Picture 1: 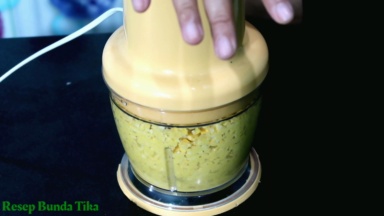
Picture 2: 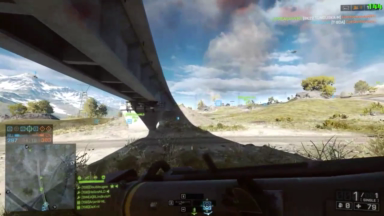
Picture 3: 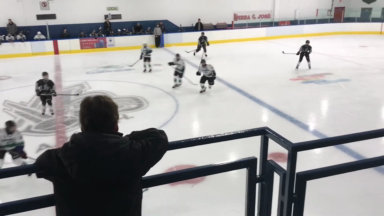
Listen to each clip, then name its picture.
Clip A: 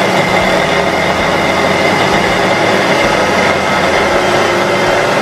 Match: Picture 1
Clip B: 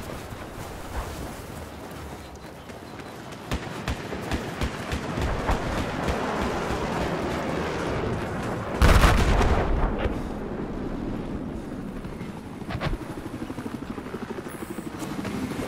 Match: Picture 2